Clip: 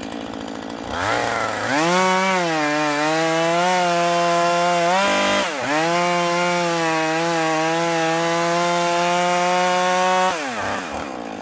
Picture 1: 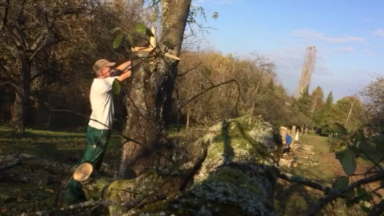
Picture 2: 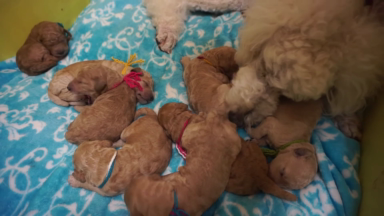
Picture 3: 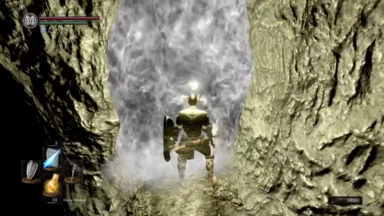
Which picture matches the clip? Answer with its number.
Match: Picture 1